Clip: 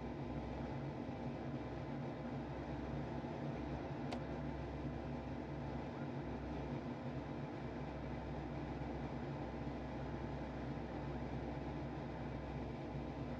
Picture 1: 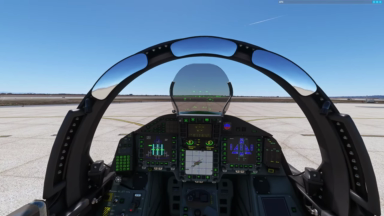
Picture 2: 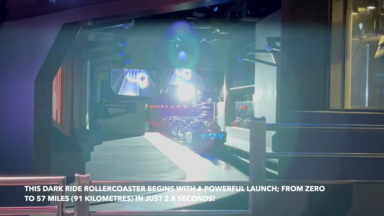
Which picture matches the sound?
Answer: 1